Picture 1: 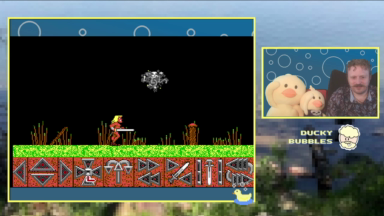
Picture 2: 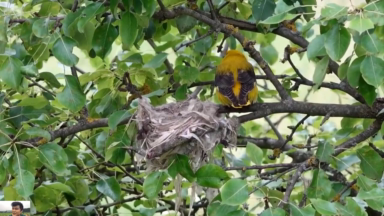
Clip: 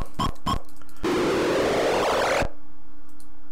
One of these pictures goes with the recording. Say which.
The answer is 1